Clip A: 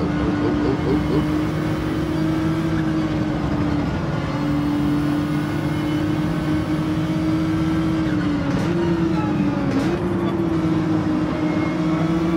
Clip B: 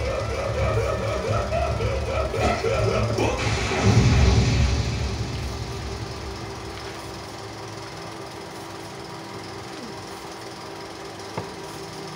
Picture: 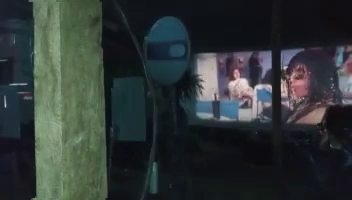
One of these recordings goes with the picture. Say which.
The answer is B